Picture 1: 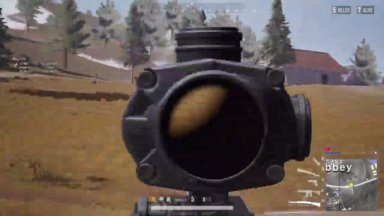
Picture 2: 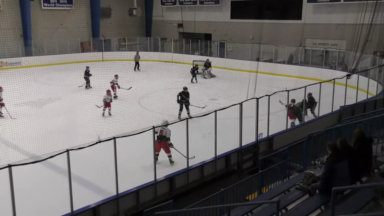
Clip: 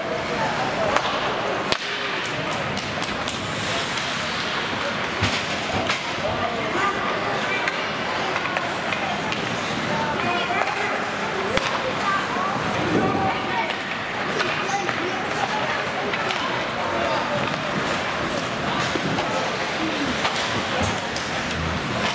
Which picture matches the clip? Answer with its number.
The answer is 2